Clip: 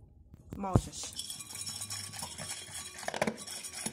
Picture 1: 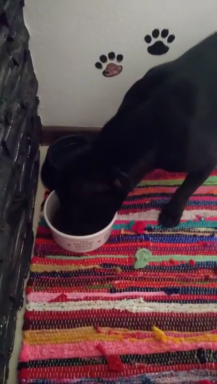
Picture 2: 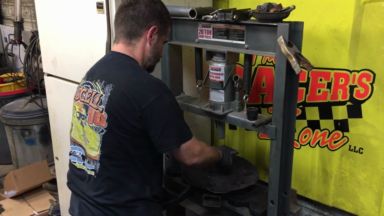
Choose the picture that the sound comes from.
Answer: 1